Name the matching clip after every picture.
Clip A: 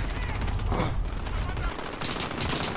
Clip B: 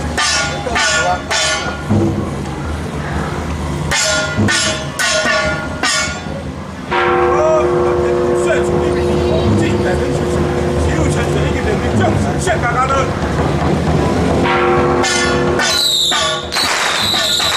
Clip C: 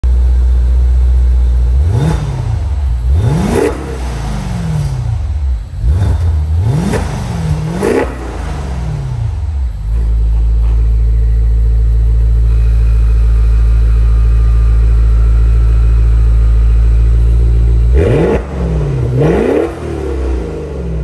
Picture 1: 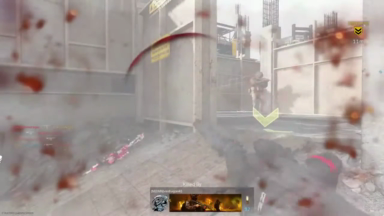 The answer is A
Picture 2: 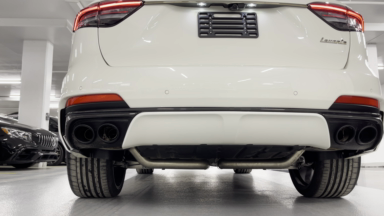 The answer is C